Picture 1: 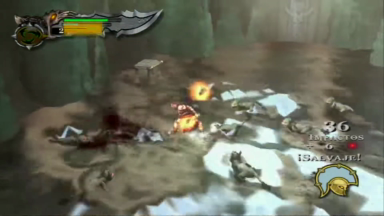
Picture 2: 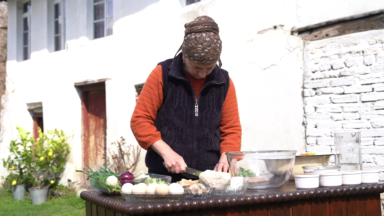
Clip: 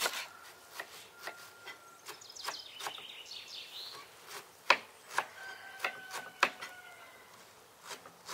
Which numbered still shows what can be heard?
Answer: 2